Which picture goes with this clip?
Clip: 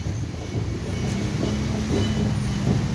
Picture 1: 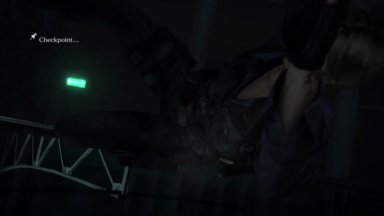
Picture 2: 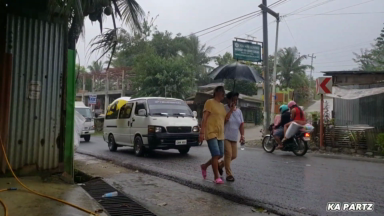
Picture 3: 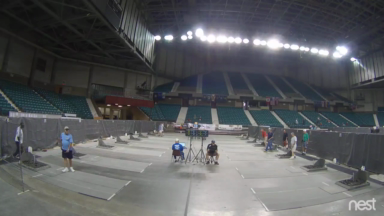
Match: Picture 2